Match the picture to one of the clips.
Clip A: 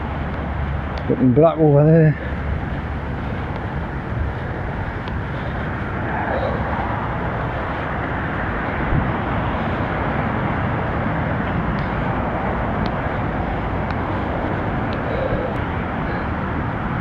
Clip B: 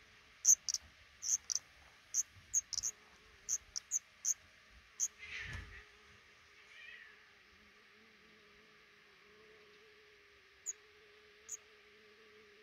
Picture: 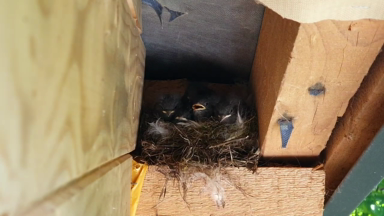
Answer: B